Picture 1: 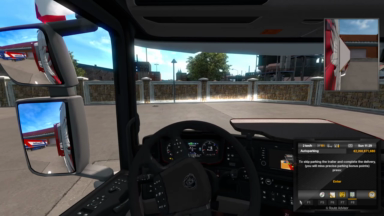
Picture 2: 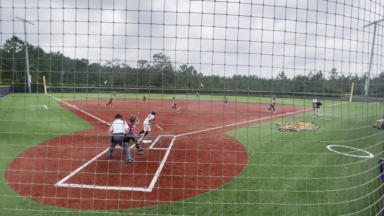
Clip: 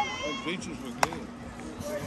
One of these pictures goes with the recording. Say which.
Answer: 2